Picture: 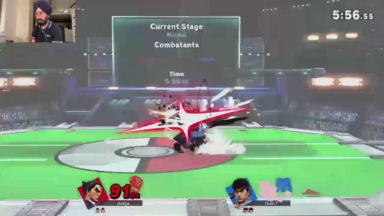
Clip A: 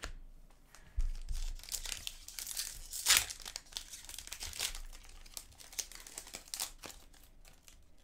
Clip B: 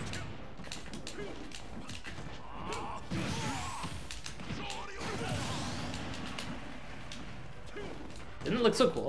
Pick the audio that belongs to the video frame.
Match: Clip B